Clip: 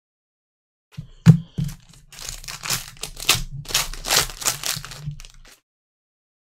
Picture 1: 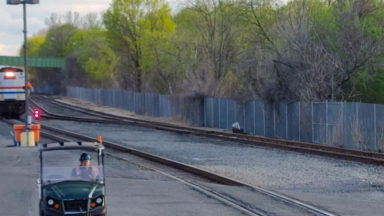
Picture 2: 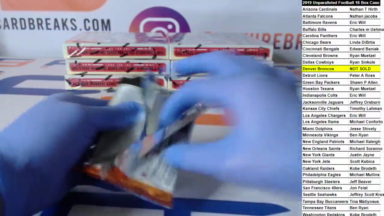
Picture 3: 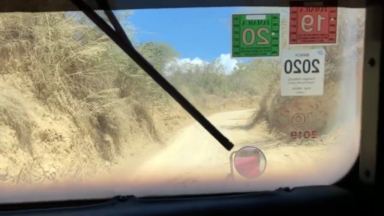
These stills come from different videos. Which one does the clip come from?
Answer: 2